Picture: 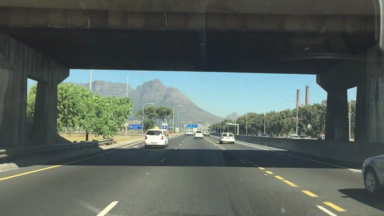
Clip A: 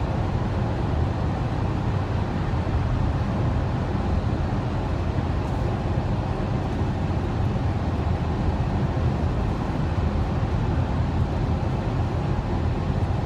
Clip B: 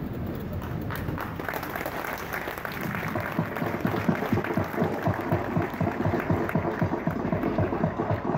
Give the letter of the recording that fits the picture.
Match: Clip A